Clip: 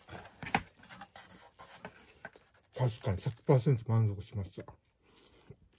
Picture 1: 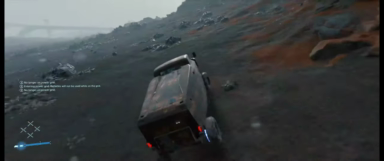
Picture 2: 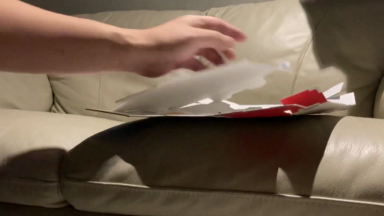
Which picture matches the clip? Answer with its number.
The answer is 2